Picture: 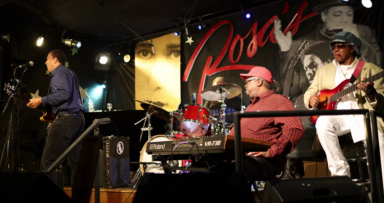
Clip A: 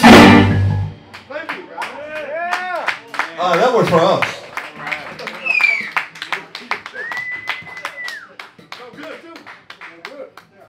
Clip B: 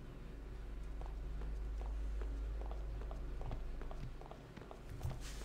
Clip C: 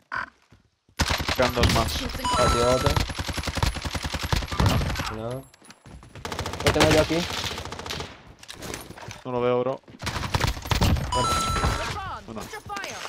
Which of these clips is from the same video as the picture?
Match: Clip A